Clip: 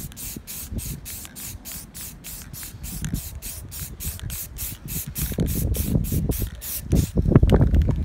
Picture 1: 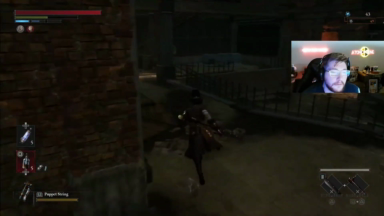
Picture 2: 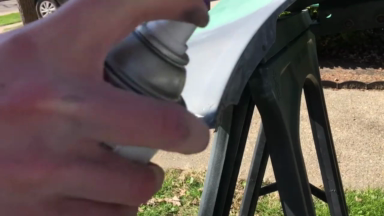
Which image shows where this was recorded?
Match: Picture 2